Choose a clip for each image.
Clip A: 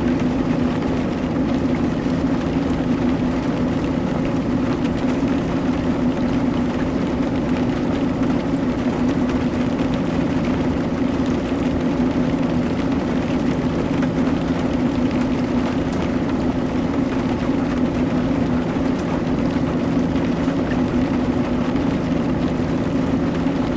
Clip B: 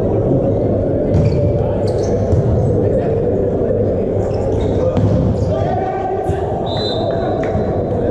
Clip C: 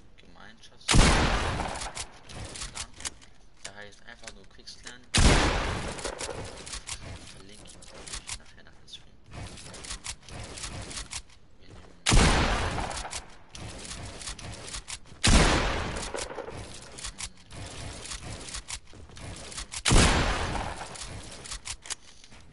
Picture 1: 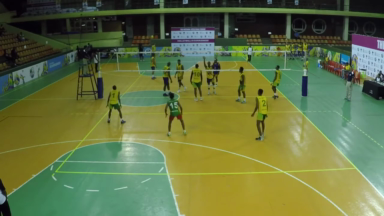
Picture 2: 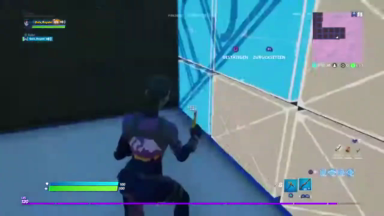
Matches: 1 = B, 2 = C